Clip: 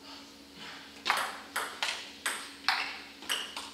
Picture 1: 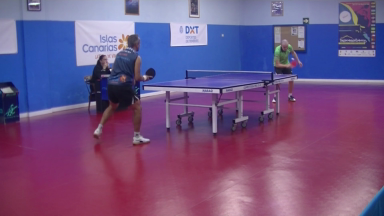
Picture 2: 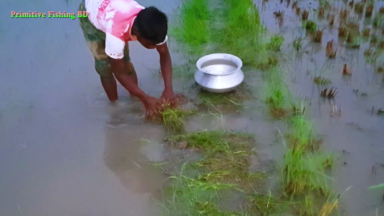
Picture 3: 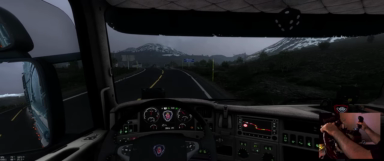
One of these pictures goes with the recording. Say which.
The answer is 1